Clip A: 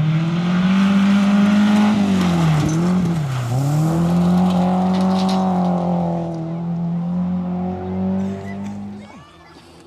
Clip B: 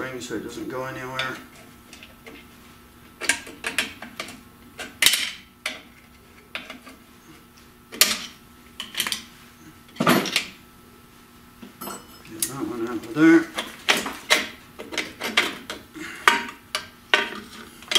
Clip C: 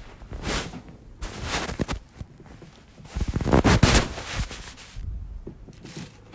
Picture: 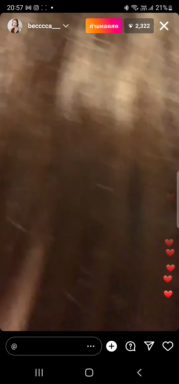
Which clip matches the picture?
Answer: C